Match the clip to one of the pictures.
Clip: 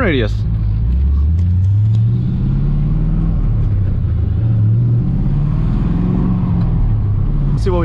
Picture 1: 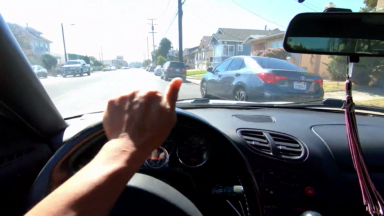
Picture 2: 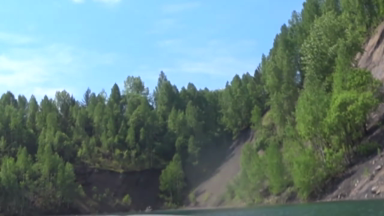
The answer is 1